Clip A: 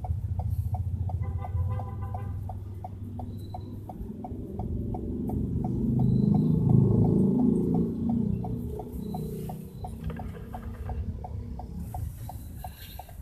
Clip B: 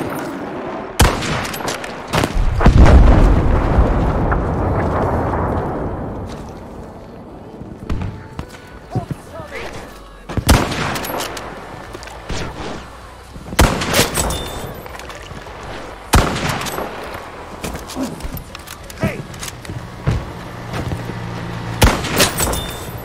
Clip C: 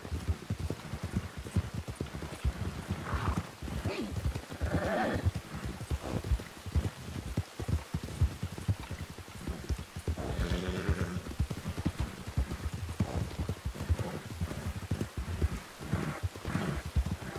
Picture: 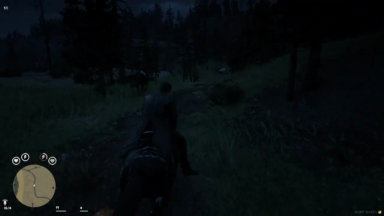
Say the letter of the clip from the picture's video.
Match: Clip C